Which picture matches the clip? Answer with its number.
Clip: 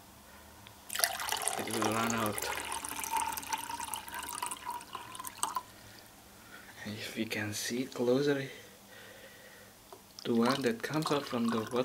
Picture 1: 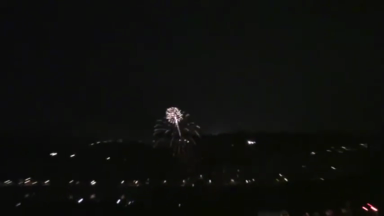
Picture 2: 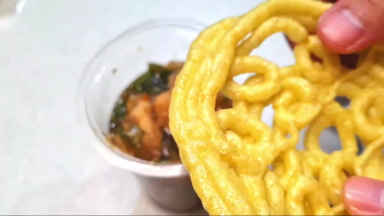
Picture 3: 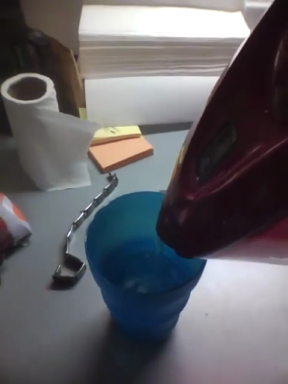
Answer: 3